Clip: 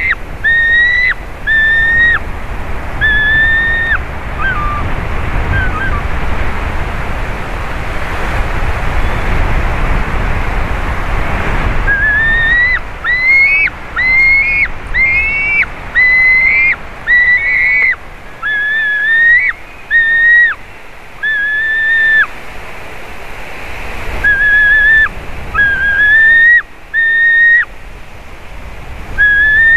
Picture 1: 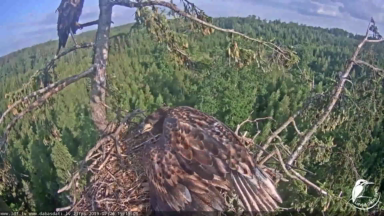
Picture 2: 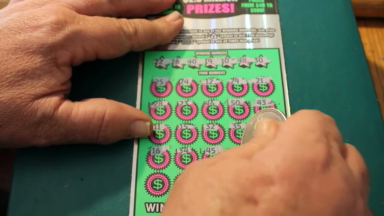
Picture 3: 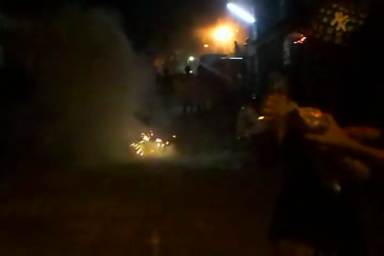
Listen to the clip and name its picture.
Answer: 1